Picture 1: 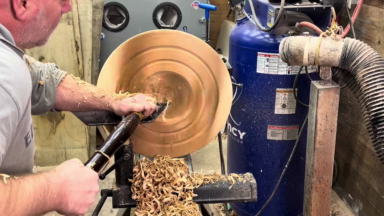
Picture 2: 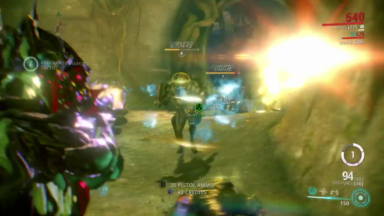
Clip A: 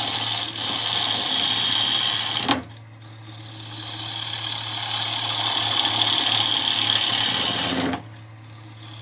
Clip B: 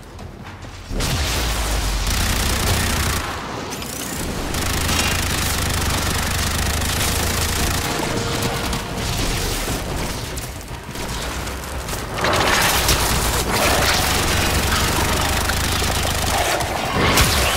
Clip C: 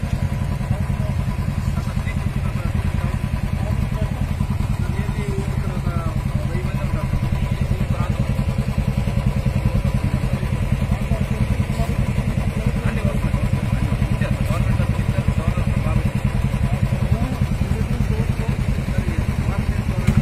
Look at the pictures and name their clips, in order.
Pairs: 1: A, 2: B